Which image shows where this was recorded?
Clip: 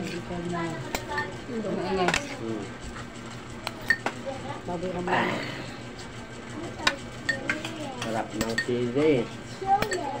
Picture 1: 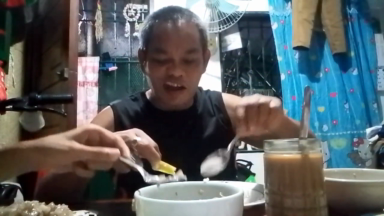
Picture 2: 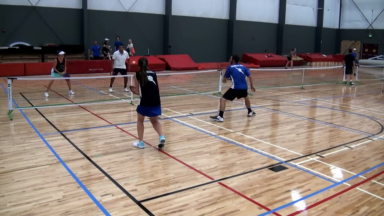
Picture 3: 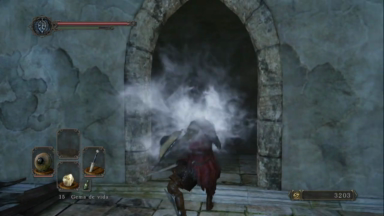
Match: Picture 1